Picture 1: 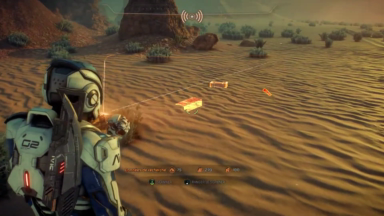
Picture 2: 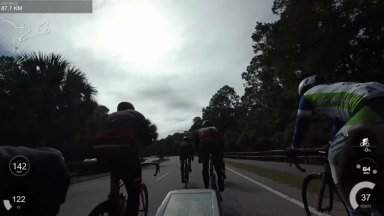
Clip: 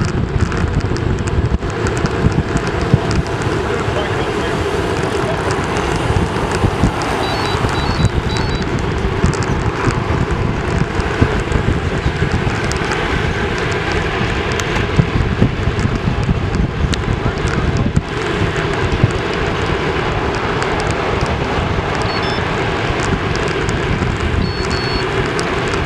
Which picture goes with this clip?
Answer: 2